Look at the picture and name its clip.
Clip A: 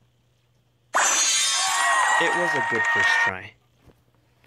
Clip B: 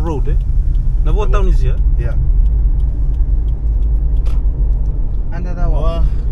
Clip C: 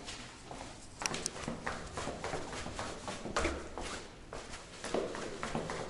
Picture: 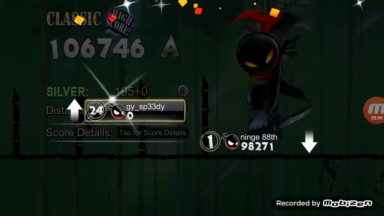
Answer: A